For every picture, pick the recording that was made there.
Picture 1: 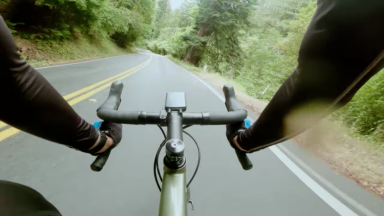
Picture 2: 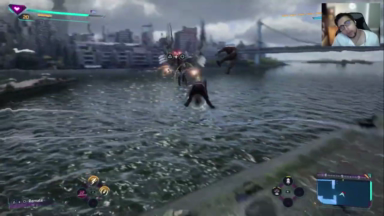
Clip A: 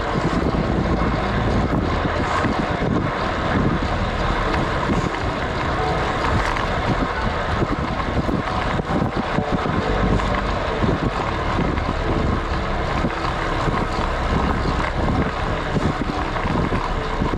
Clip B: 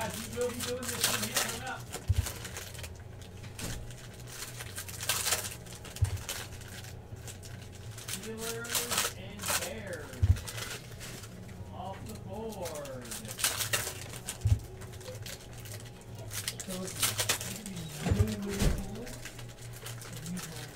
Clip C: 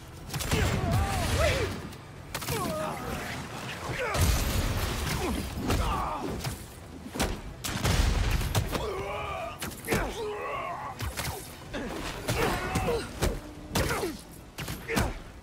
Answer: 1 A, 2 C